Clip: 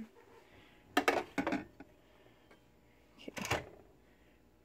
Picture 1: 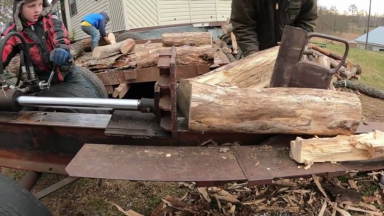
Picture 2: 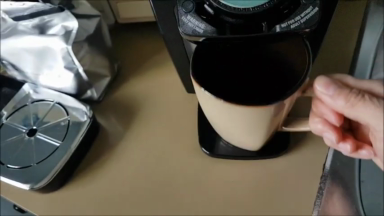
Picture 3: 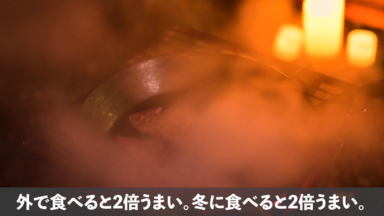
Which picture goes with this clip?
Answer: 2